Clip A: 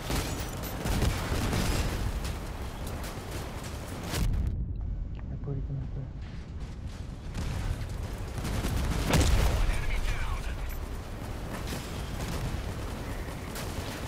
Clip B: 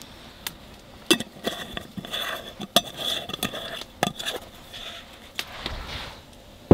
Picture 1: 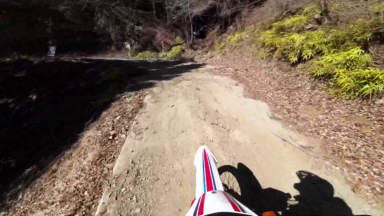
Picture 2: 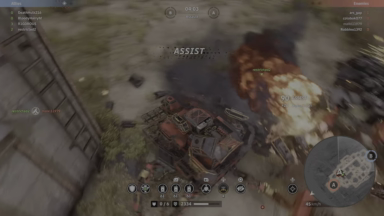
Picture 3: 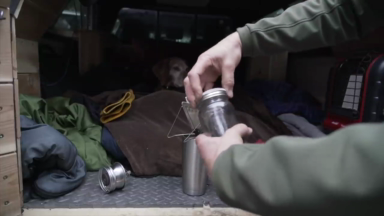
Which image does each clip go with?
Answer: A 2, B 3